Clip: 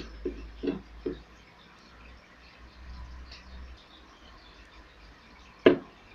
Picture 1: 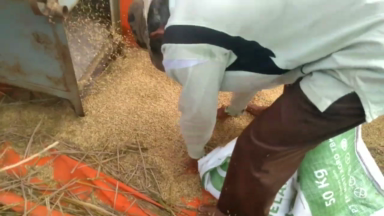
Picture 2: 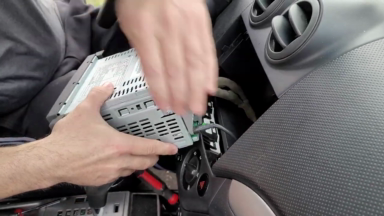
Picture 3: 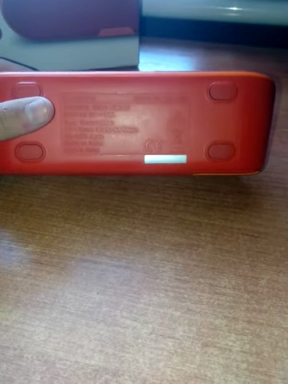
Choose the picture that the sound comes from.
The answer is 3